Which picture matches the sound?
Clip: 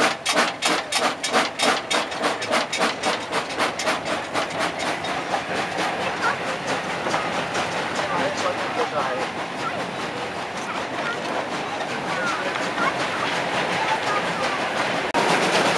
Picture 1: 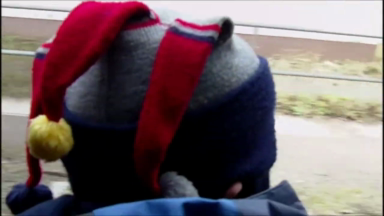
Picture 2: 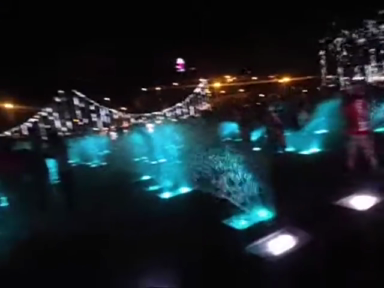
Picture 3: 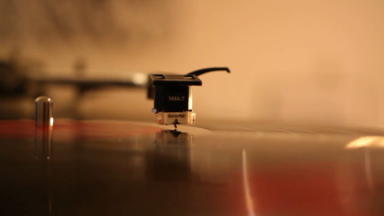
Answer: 1